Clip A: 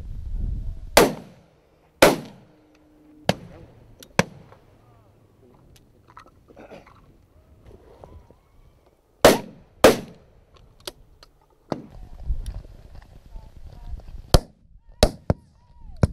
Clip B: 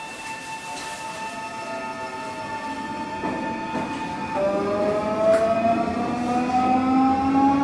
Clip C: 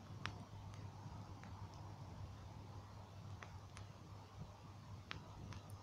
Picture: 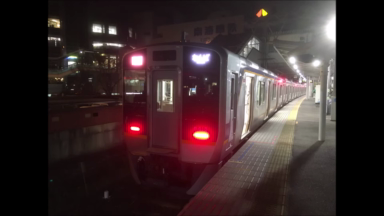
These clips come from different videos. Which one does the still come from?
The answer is B